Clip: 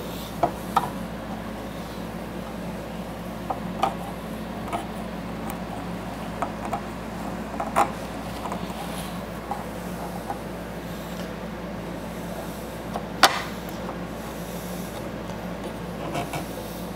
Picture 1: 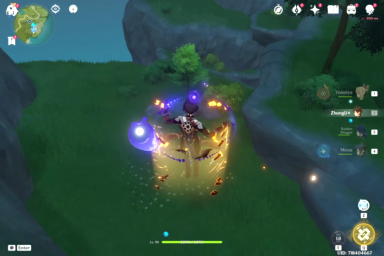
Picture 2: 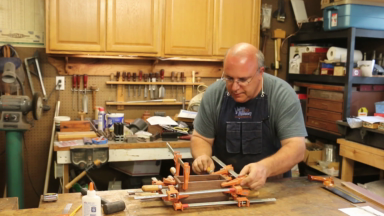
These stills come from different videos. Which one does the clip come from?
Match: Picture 2